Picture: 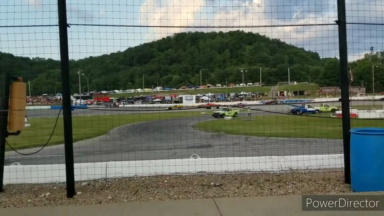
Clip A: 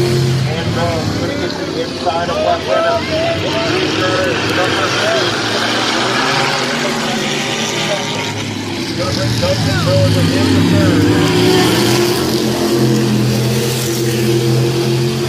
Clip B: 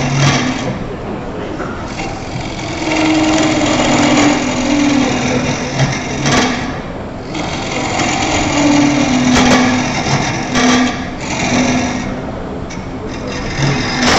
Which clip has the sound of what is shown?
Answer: A